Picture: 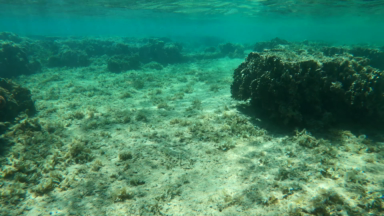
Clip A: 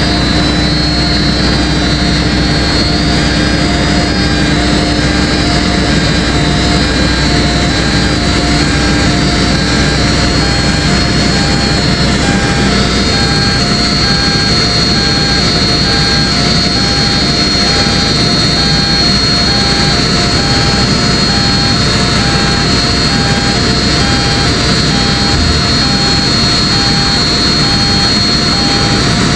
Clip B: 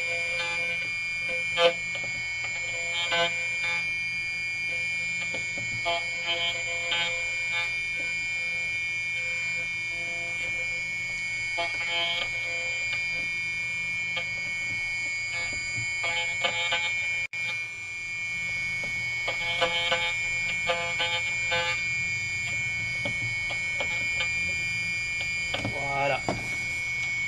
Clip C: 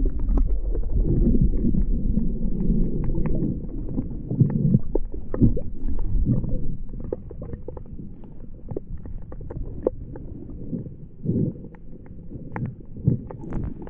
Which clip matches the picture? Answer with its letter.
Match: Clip C